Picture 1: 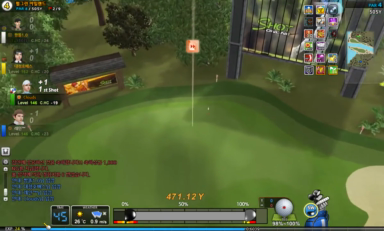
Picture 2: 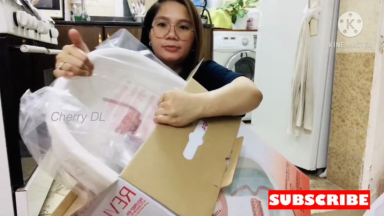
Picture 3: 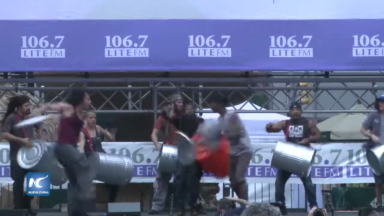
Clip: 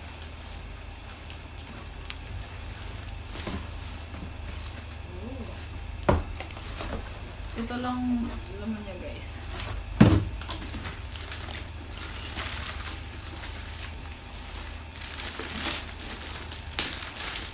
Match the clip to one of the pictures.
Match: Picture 2